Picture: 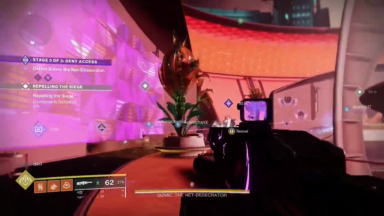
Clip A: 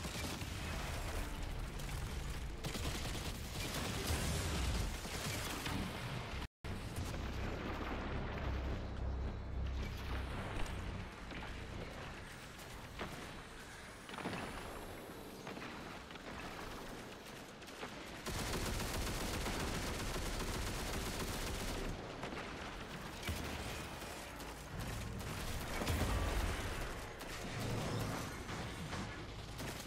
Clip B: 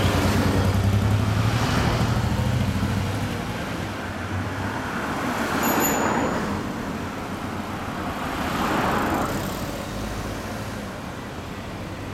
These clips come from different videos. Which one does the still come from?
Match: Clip A